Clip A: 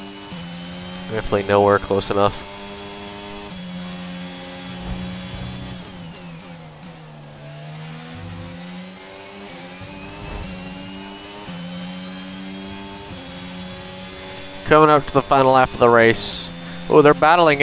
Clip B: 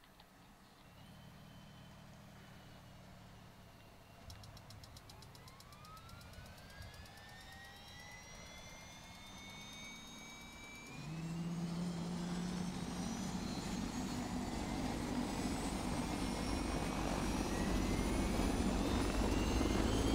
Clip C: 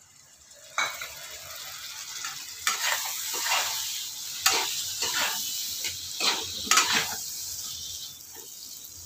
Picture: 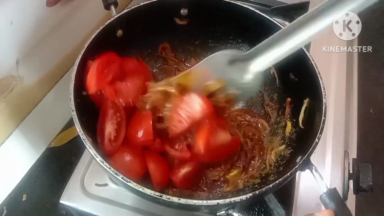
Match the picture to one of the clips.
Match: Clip C